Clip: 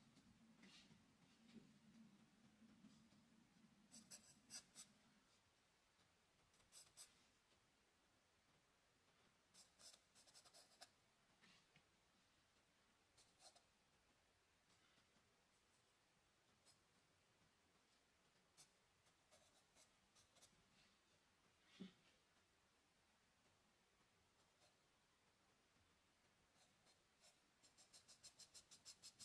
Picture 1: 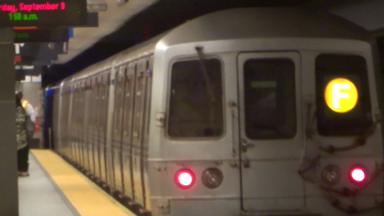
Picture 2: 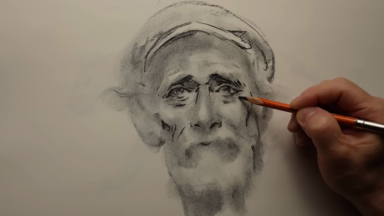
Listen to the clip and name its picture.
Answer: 2